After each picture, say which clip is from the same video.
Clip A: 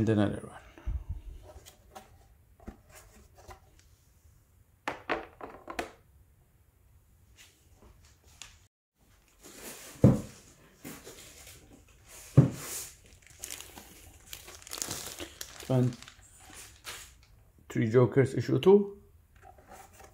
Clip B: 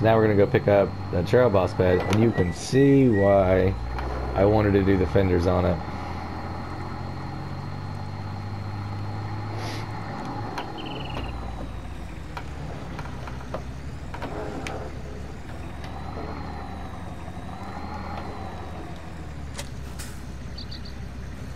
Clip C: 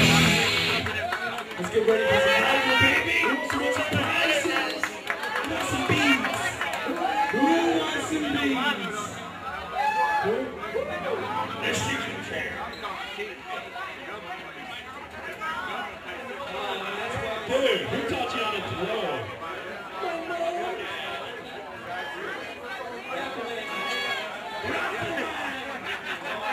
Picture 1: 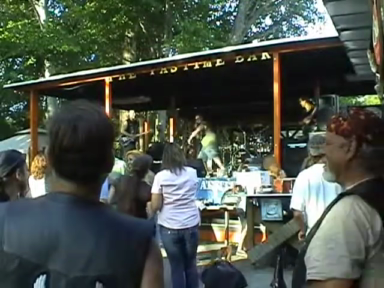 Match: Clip C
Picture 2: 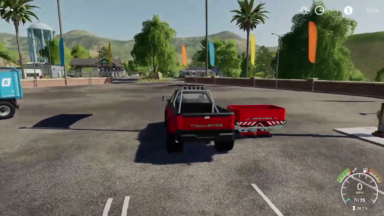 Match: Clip B